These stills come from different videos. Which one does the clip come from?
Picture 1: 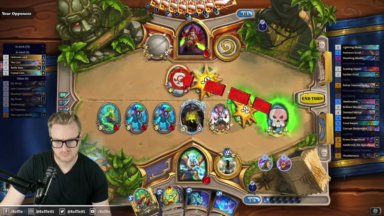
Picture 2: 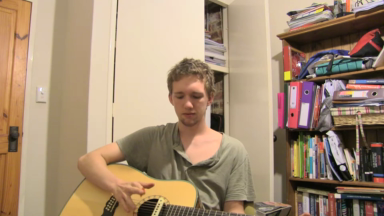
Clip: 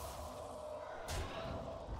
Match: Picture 1